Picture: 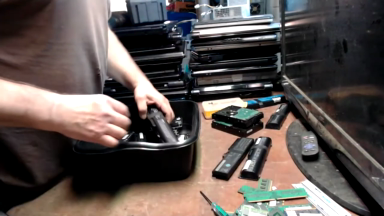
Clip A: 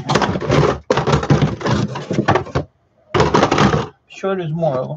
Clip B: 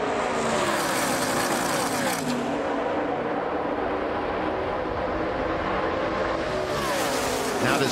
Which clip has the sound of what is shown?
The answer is A